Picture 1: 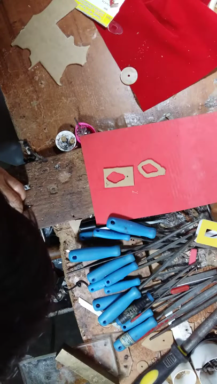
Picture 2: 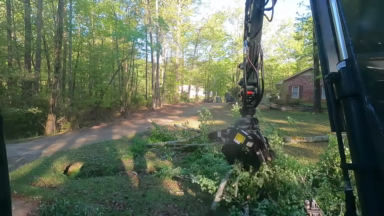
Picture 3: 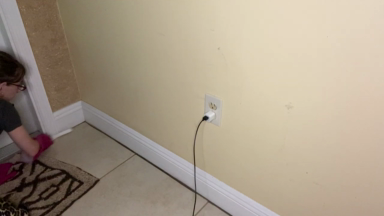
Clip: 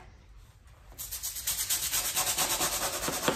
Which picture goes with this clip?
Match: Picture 3